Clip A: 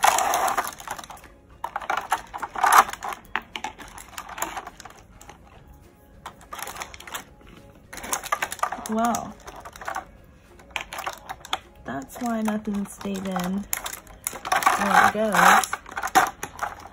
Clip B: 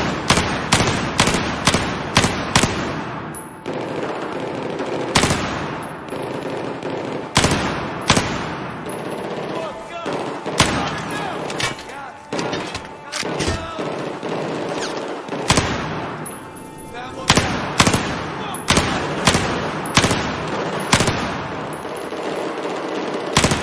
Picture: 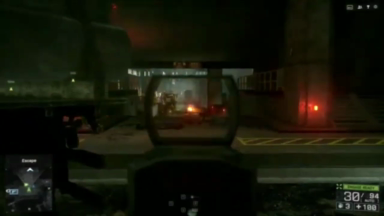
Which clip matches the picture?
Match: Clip B